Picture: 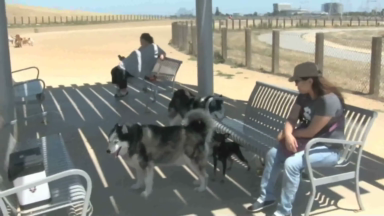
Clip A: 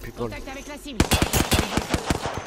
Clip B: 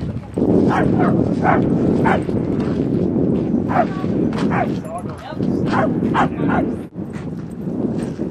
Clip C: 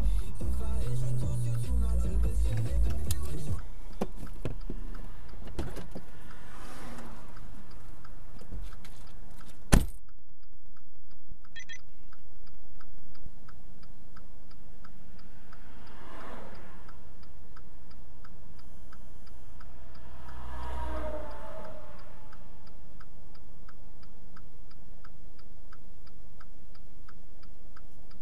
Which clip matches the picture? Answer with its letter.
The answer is B